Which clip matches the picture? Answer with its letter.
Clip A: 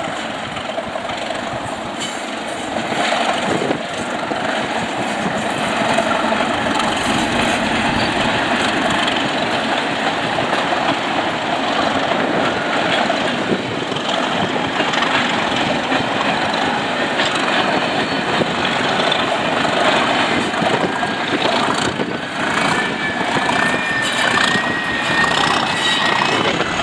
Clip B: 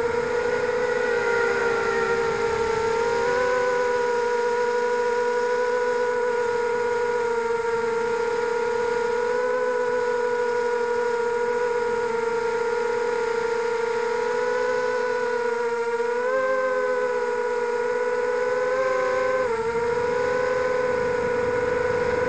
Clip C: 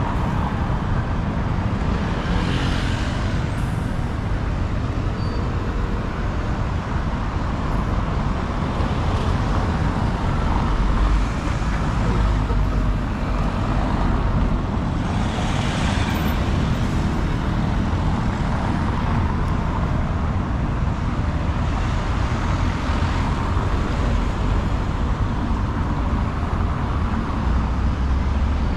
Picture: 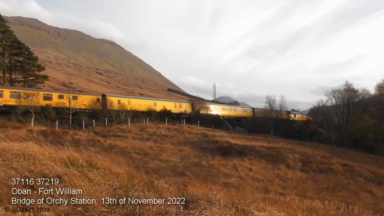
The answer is A